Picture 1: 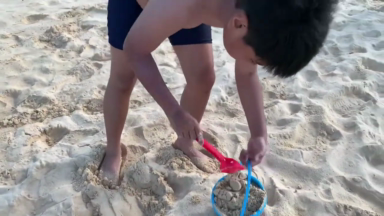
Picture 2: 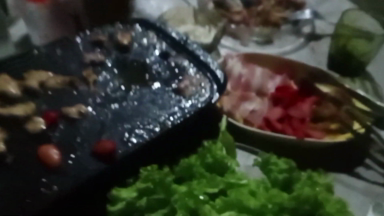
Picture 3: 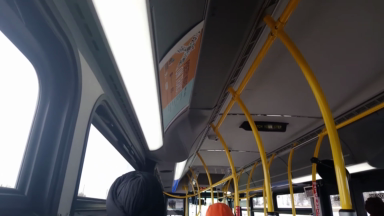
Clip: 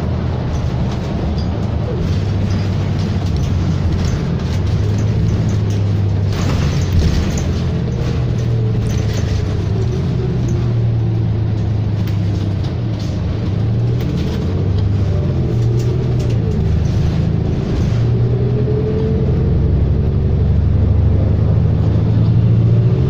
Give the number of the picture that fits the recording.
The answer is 3